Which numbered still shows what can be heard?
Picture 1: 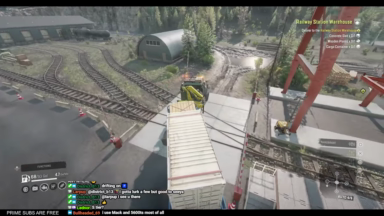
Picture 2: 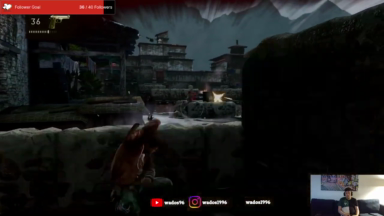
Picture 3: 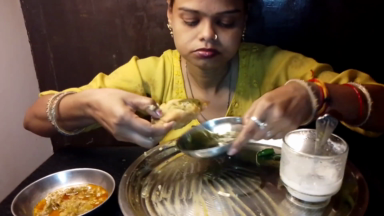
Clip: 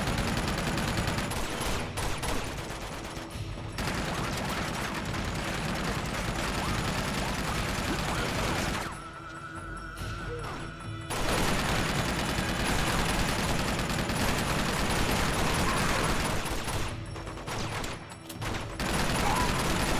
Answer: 2